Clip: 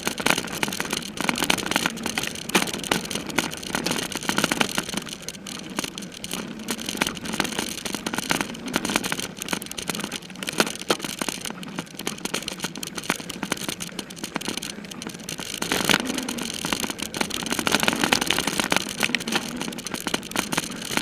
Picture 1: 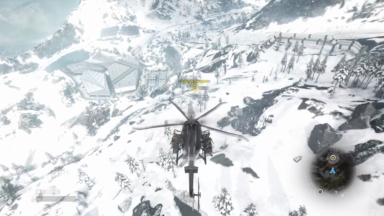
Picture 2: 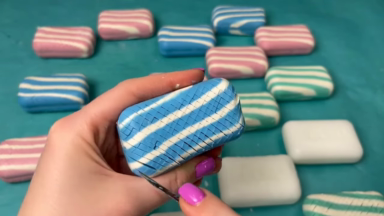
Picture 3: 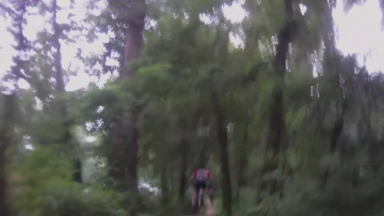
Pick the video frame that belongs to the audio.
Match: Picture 3